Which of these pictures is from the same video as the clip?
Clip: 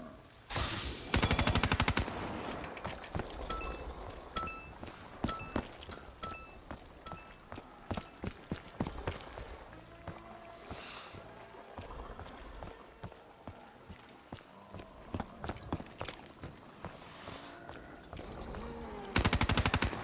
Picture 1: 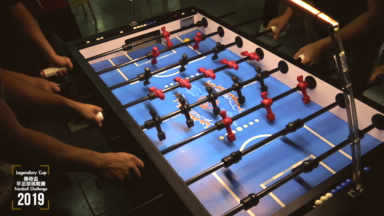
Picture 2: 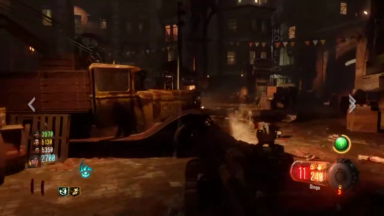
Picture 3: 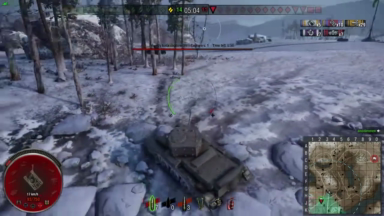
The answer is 2